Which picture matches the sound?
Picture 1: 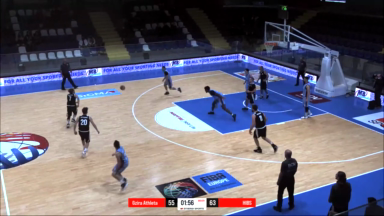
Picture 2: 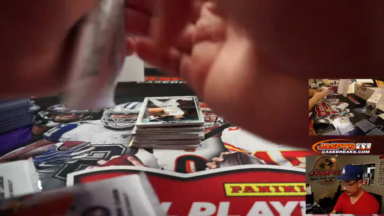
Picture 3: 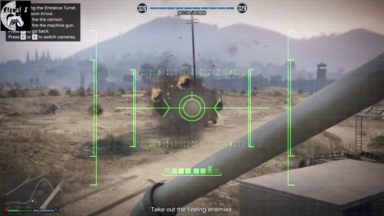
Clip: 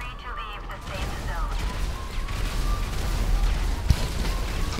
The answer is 3